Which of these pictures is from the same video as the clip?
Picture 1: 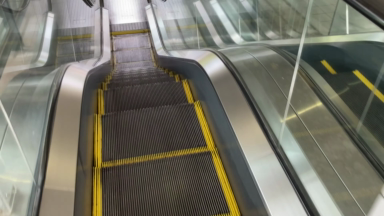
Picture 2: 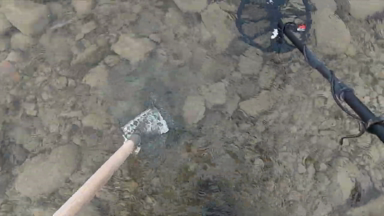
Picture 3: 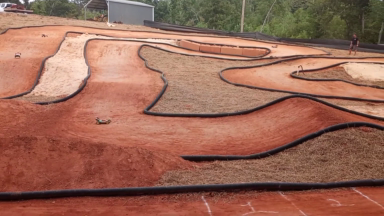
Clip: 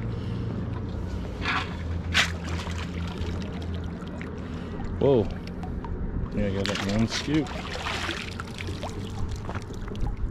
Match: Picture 2